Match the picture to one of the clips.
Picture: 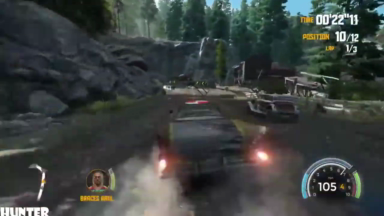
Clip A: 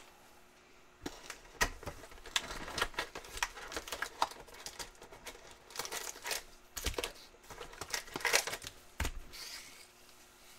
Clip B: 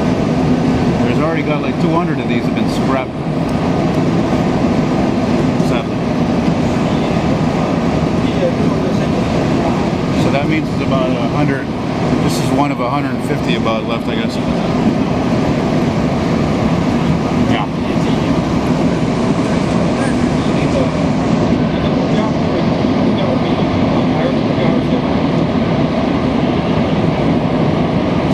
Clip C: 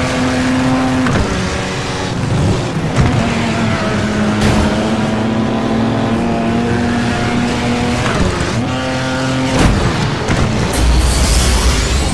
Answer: C